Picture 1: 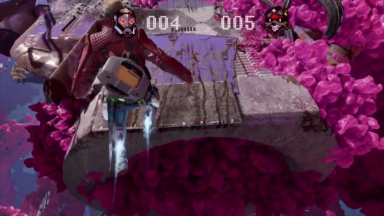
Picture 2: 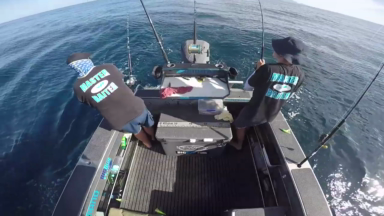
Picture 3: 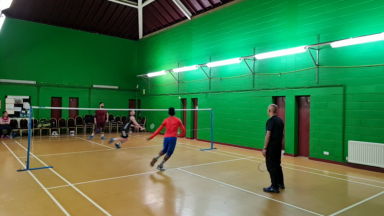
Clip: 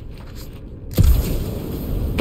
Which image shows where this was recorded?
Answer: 1